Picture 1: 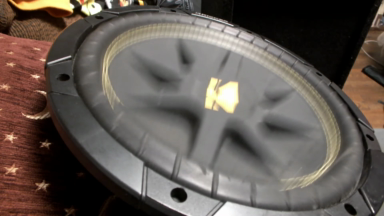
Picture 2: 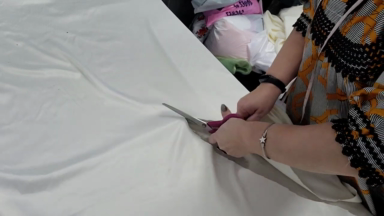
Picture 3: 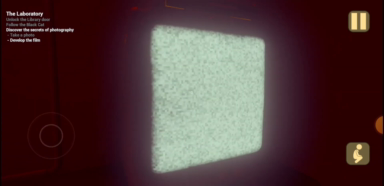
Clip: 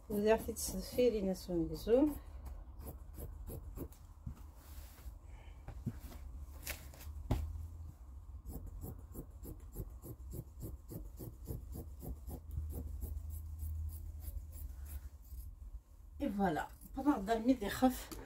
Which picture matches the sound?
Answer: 2